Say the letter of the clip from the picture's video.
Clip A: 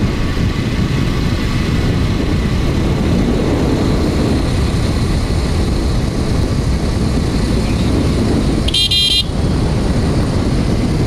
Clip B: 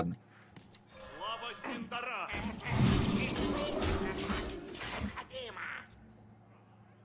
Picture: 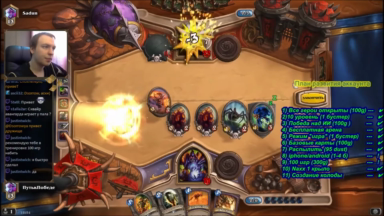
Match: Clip B